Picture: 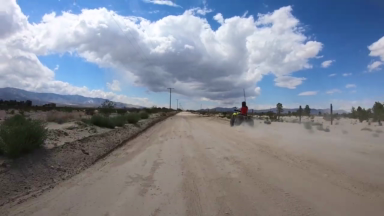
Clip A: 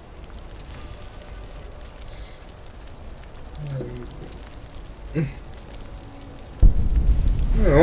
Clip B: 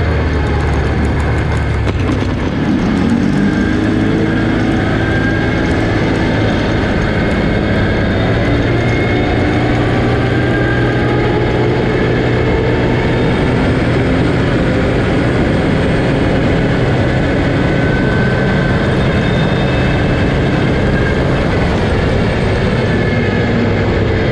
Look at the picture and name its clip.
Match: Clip B